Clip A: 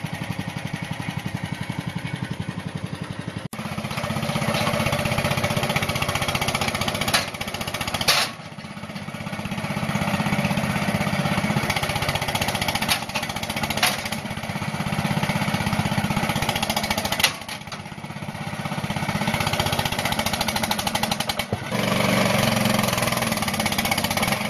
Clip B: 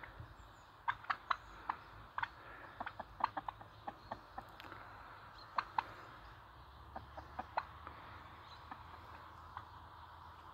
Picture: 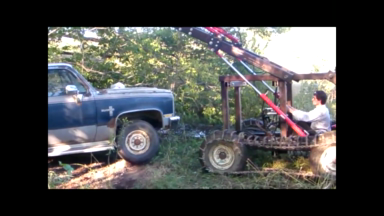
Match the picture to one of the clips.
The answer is A